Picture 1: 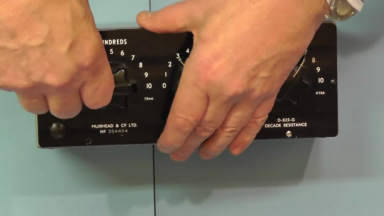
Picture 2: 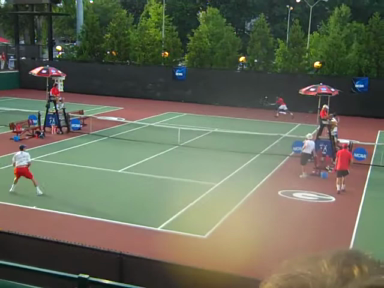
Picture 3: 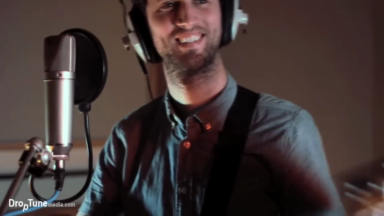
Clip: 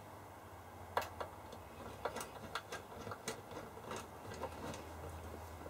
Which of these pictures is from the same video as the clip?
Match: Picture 1